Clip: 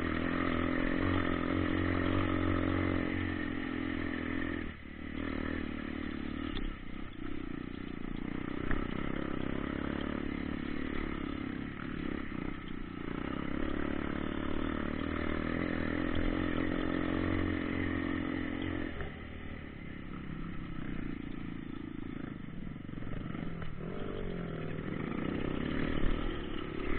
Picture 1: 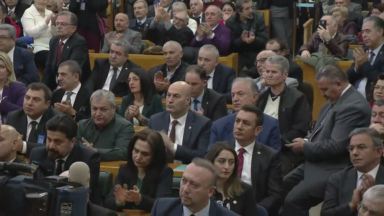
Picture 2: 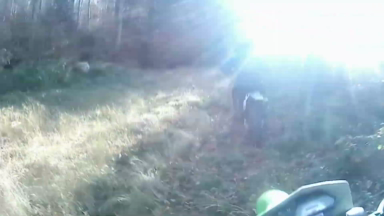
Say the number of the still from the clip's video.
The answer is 2